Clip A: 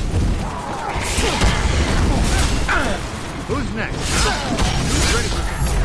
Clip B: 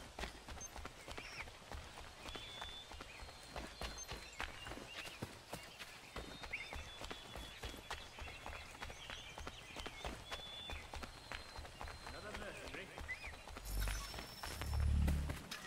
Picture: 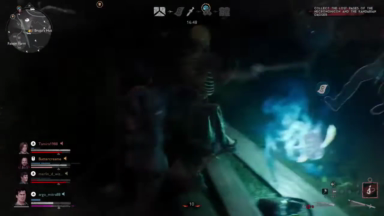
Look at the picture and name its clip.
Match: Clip A